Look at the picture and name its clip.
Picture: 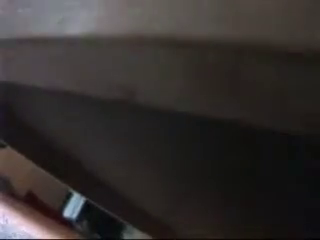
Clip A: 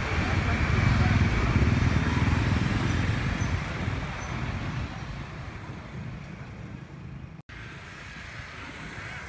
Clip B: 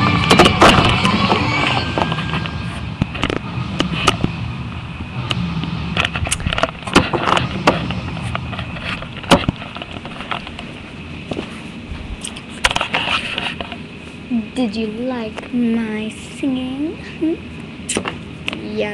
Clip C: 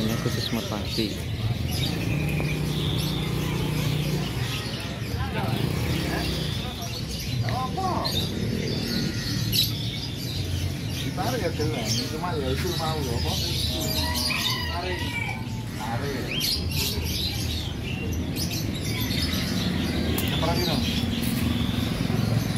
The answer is B